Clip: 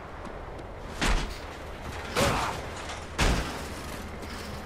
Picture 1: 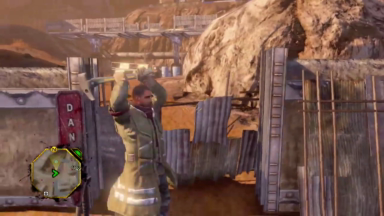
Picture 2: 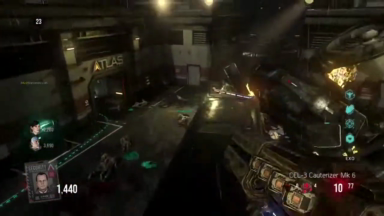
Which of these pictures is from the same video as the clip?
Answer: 1